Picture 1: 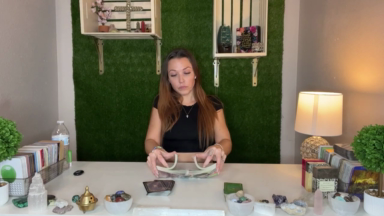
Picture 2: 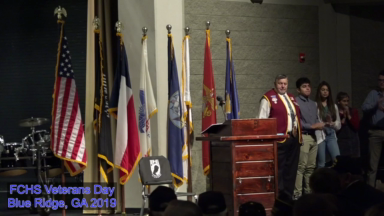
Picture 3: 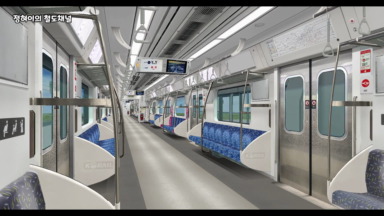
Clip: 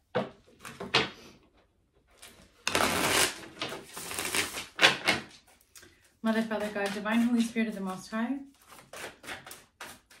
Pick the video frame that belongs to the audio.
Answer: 1